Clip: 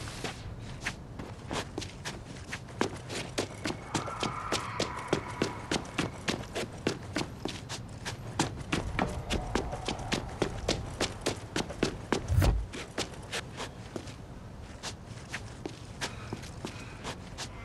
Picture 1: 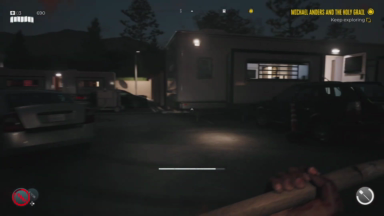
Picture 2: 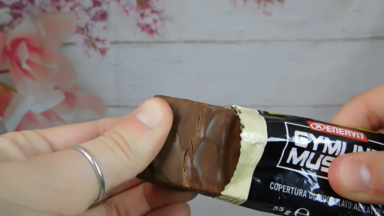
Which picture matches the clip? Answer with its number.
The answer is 1